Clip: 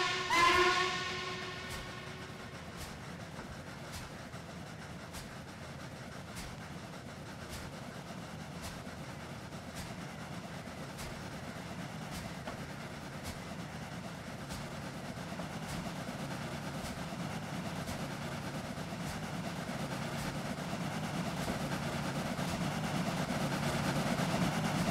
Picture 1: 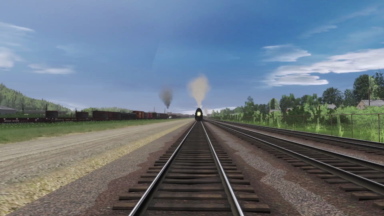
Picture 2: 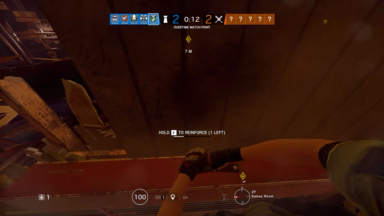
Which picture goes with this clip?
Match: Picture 1